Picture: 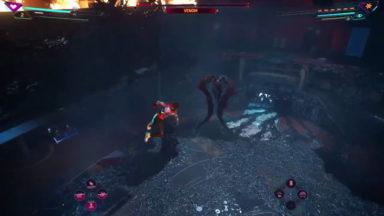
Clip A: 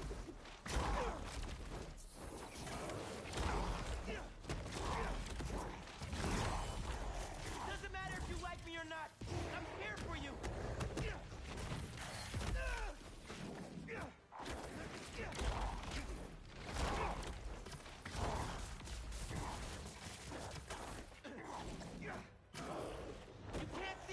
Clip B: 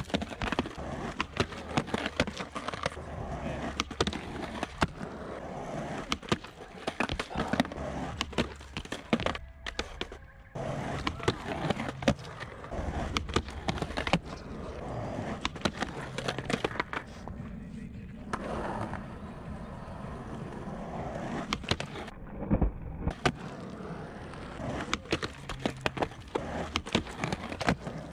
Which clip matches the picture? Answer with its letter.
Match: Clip A